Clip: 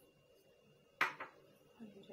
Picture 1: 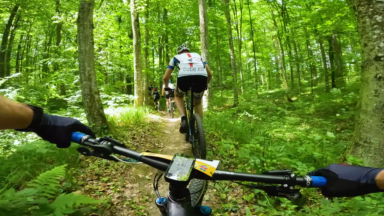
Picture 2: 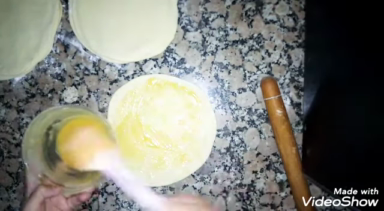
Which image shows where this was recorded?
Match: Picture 2